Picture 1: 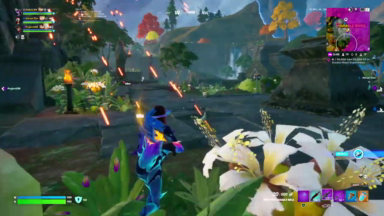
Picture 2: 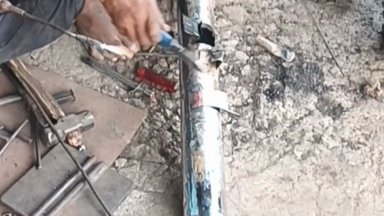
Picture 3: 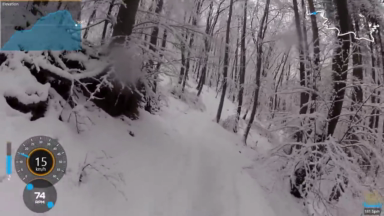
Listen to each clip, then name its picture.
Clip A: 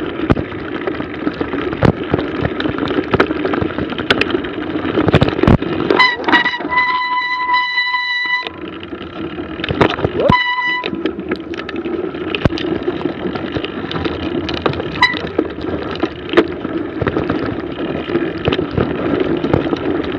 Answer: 3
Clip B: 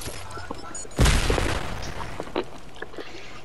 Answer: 1